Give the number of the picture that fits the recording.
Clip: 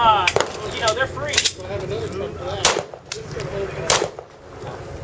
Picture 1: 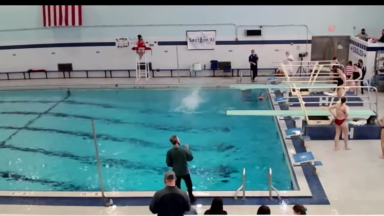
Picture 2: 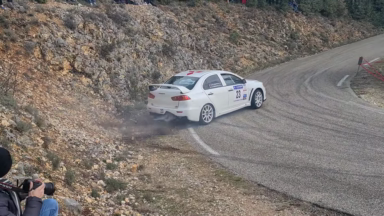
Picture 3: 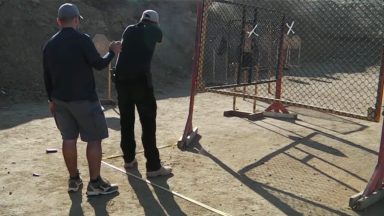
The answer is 3